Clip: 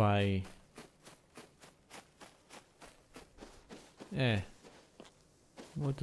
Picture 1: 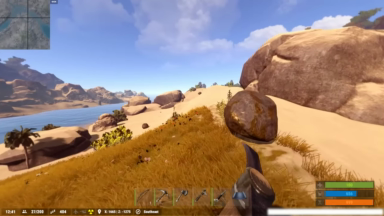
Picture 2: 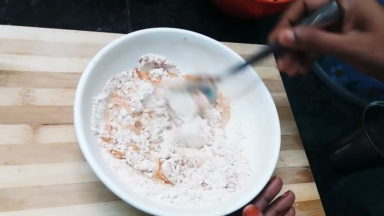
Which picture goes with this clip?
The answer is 1